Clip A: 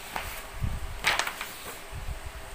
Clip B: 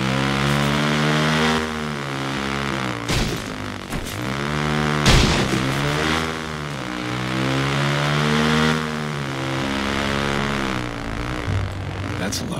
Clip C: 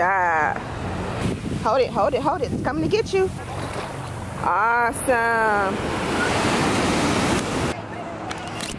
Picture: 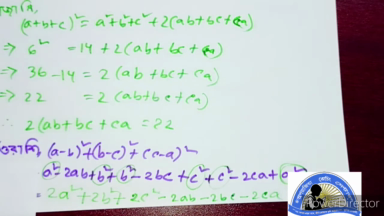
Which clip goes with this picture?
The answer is A